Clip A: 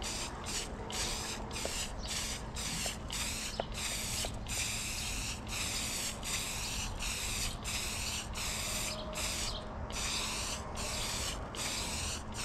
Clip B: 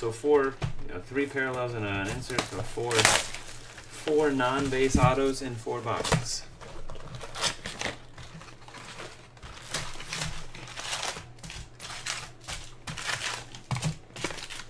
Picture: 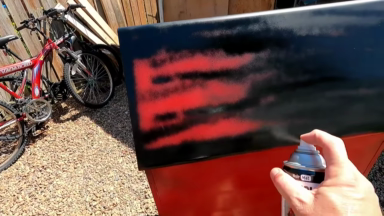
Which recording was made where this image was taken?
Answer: A